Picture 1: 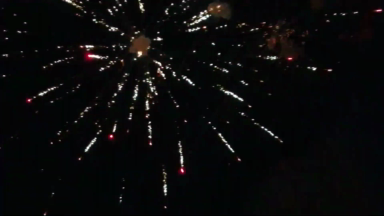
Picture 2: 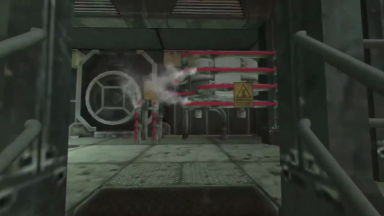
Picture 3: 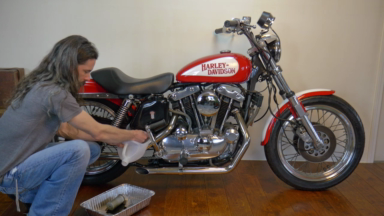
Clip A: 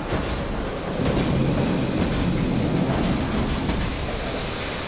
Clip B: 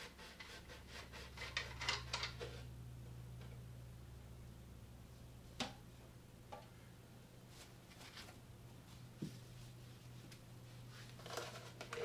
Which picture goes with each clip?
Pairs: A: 2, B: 3